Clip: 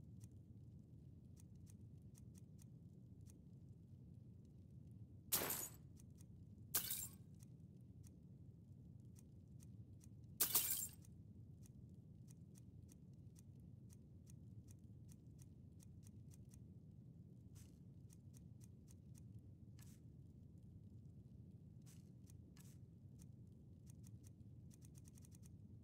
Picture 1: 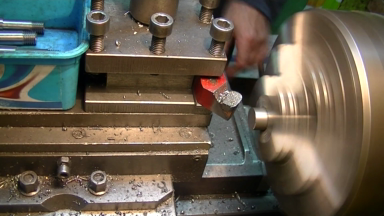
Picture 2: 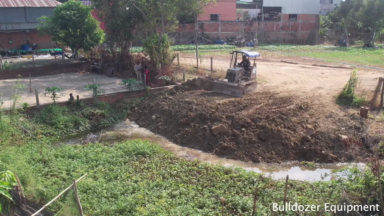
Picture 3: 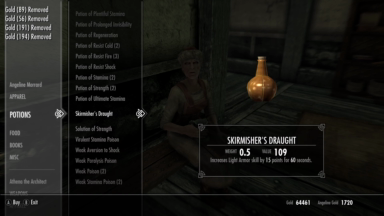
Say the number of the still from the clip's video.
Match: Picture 3